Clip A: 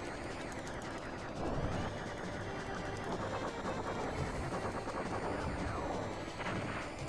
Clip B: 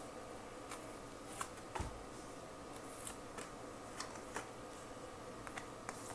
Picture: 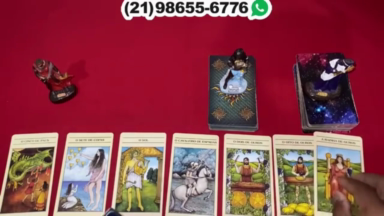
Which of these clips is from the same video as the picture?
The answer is B